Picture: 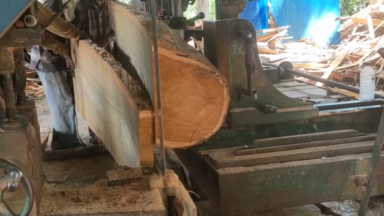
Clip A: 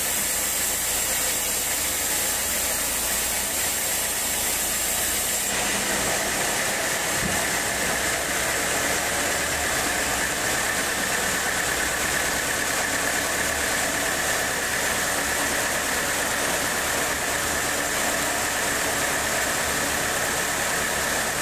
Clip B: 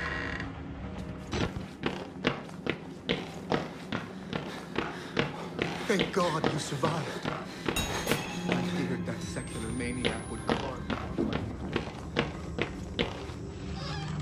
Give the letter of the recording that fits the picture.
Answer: A